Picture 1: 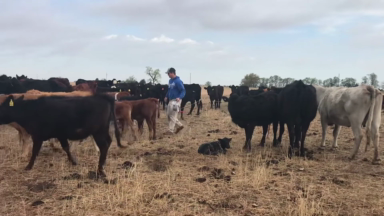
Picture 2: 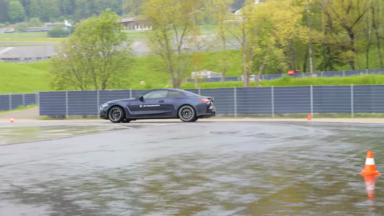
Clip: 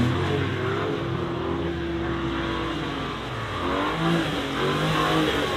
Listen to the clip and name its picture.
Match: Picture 2